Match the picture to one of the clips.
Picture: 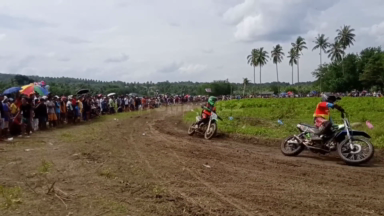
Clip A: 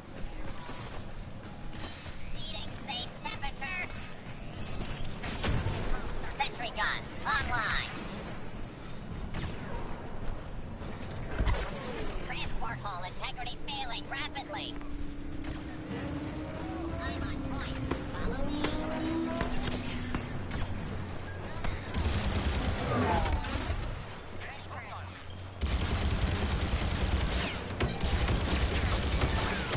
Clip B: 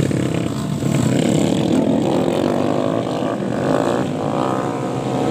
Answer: B